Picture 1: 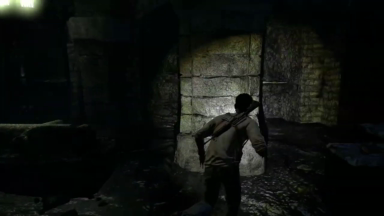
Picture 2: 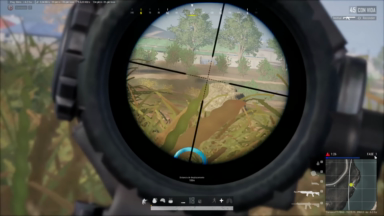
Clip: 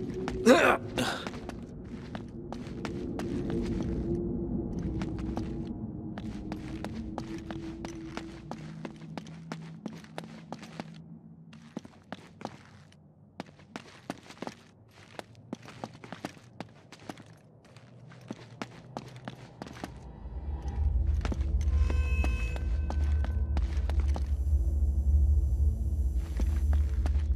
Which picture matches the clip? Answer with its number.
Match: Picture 1